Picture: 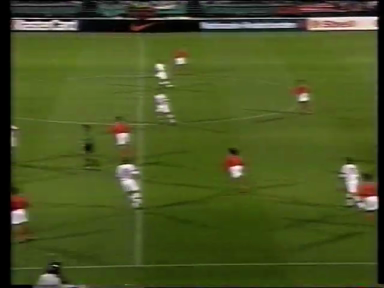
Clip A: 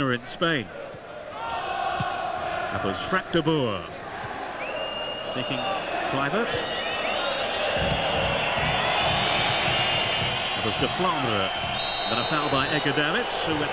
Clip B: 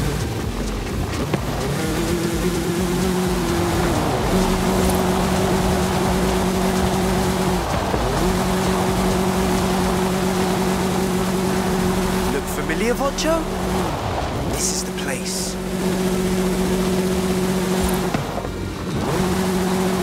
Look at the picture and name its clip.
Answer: A